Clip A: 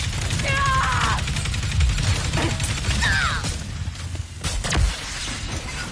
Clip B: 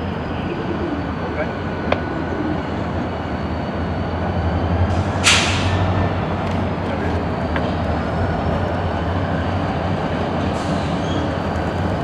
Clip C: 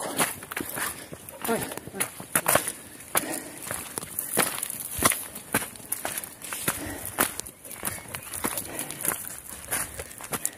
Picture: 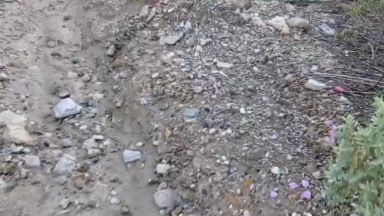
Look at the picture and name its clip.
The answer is C